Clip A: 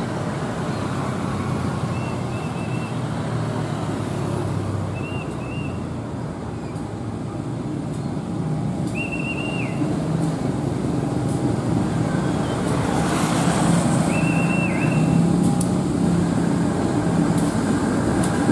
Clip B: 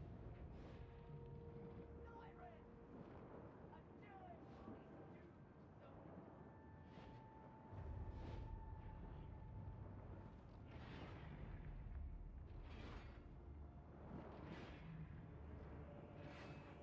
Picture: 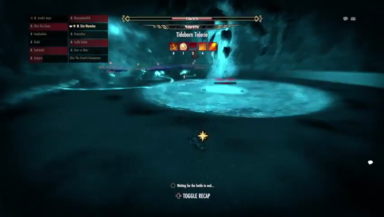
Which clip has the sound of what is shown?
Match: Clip B